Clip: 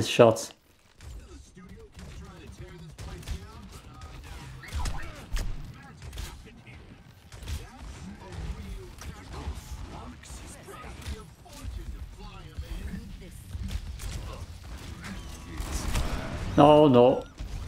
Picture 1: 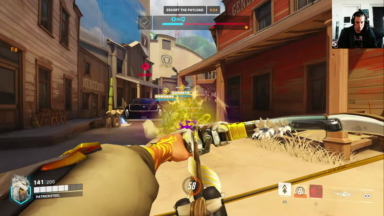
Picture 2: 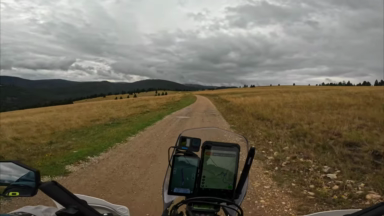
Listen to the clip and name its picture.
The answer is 1